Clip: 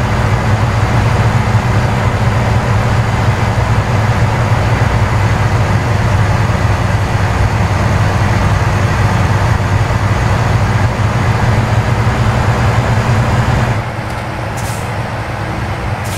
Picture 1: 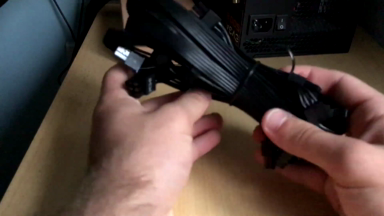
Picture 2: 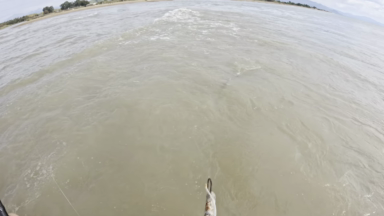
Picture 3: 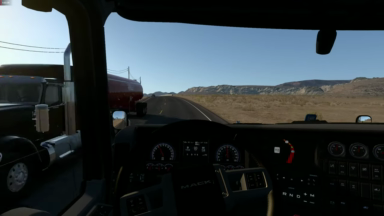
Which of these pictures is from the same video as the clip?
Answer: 3